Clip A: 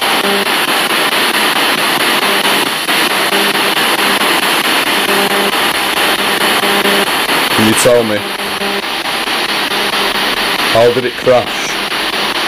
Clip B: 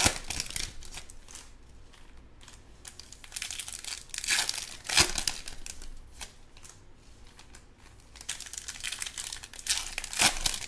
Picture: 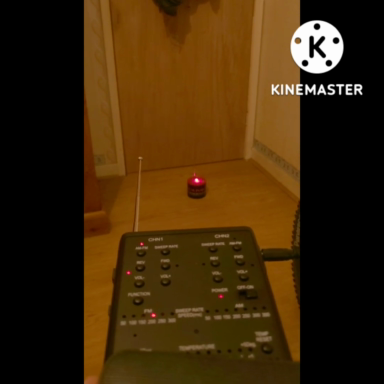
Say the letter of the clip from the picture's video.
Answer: A